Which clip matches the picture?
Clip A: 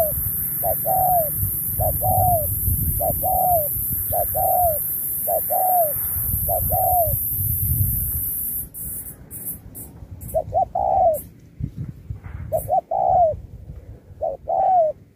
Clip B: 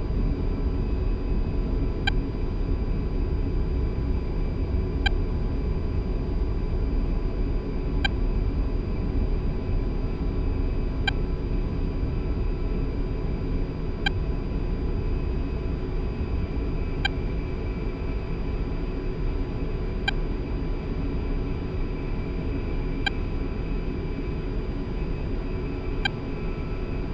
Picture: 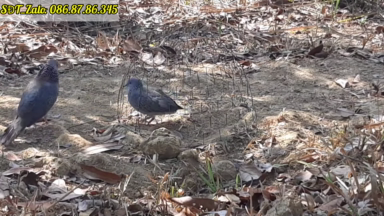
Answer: A